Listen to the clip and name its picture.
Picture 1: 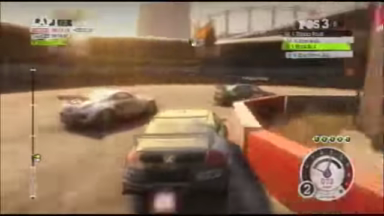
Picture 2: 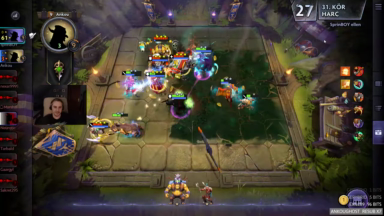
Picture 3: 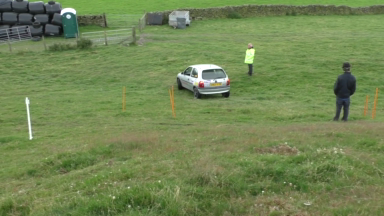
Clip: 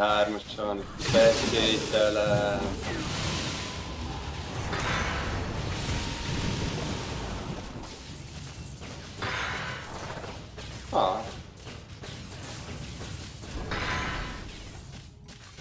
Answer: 2